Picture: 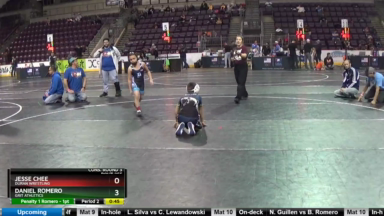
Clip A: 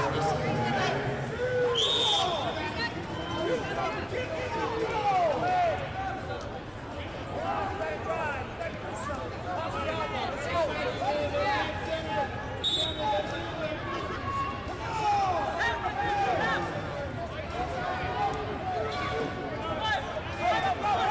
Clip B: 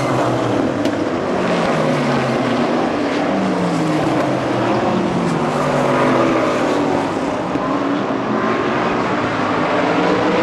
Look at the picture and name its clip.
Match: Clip A